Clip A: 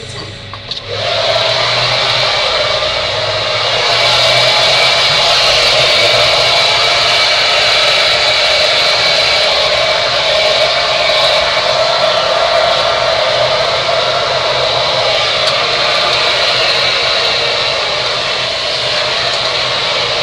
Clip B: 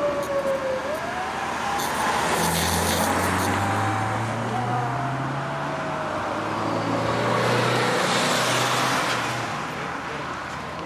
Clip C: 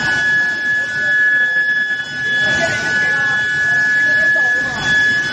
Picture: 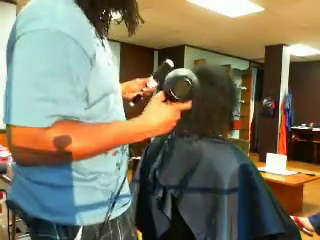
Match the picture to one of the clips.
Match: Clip A